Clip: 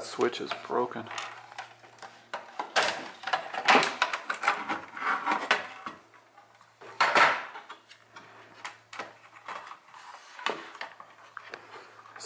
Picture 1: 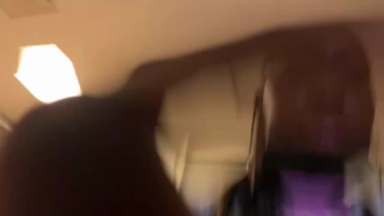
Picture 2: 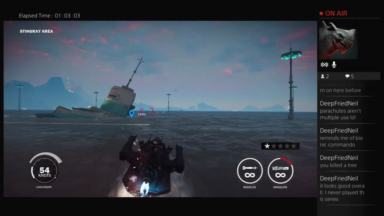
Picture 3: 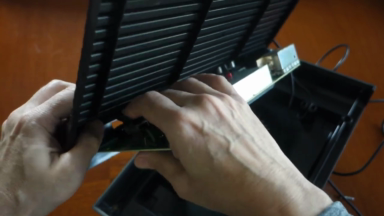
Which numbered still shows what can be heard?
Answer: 3